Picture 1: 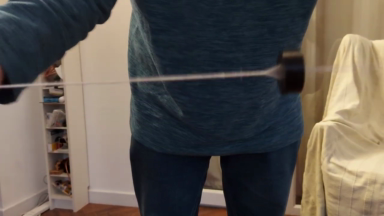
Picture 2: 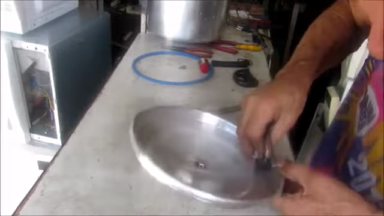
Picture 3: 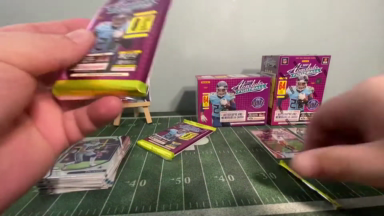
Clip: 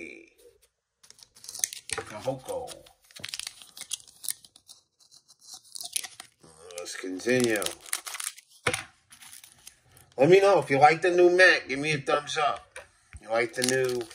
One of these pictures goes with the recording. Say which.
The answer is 3